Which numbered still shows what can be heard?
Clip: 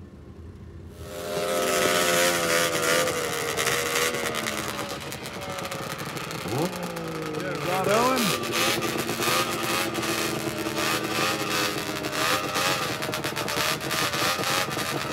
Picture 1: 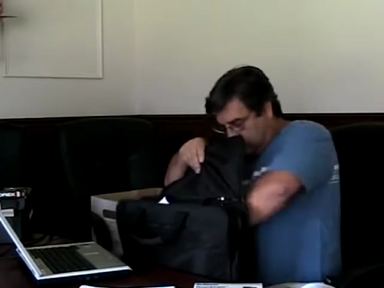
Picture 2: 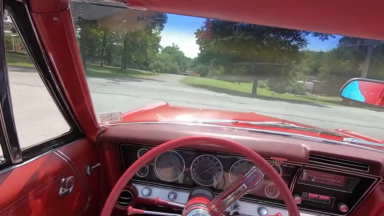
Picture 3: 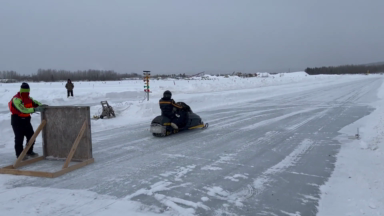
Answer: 3